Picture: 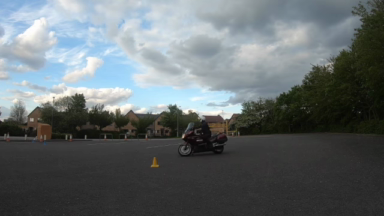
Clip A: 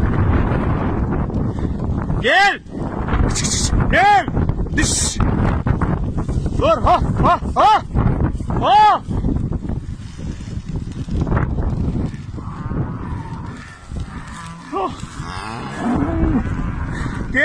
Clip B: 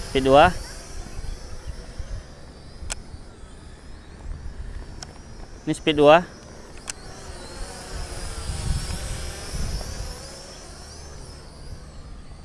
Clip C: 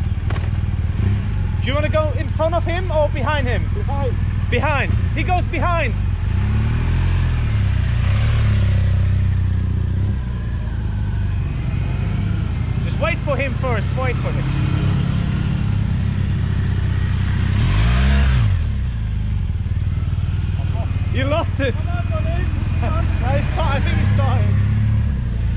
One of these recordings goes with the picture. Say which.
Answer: C